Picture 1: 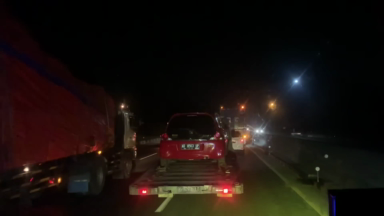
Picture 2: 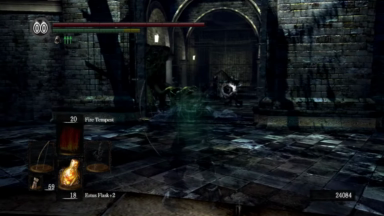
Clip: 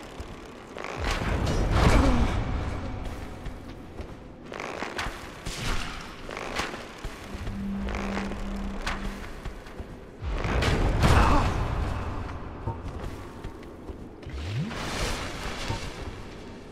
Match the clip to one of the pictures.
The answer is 2